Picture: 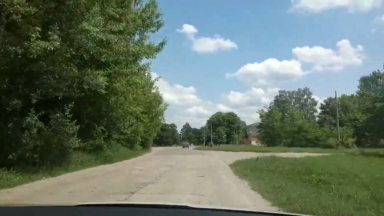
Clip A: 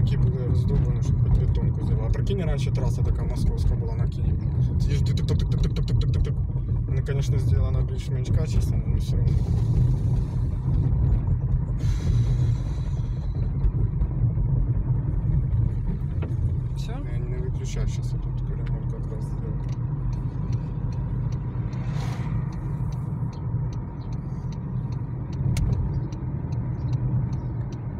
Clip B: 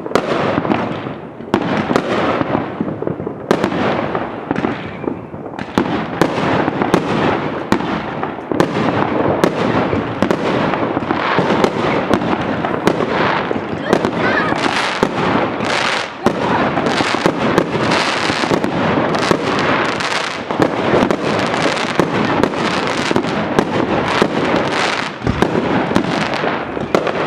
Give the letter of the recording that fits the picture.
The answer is A